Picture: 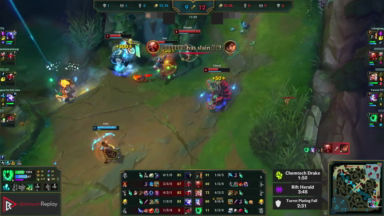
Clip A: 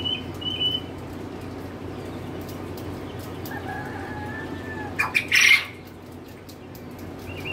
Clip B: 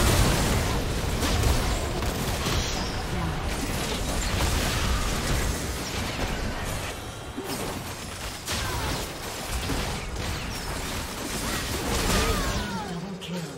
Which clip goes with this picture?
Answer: B